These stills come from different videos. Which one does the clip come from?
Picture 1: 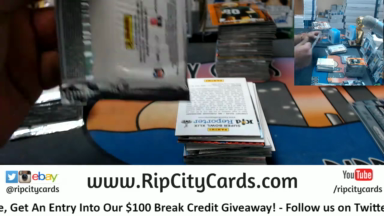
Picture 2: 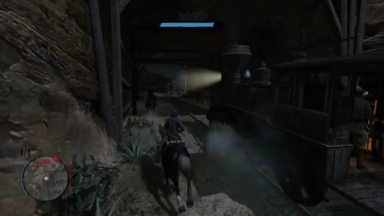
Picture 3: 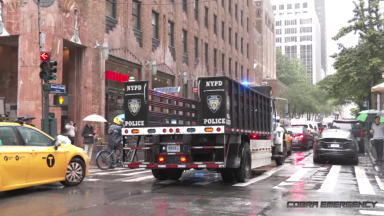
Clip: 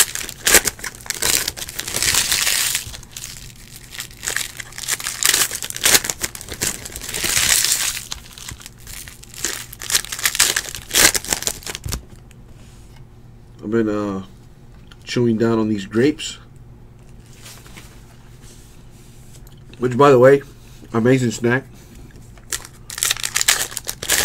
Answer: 1